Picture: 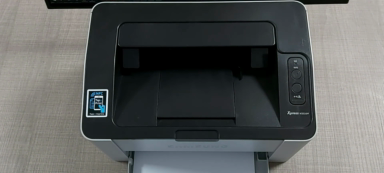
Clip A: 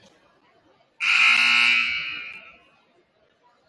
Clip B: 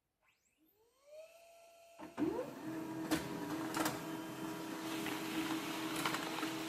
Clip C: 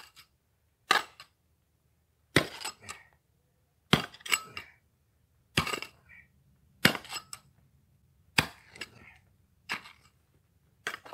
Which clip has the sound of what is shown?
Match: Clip B